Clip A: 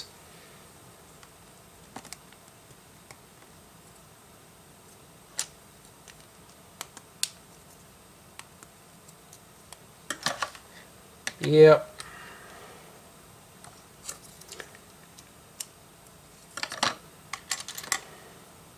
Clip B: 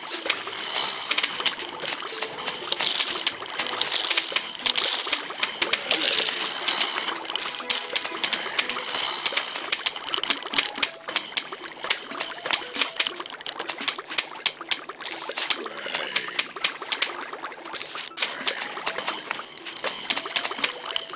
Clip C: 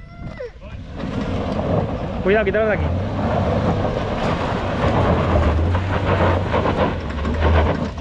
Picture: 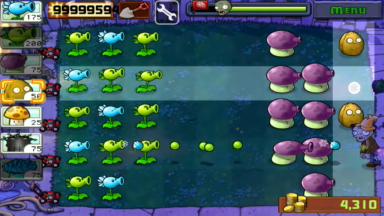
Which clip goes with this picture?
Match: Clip B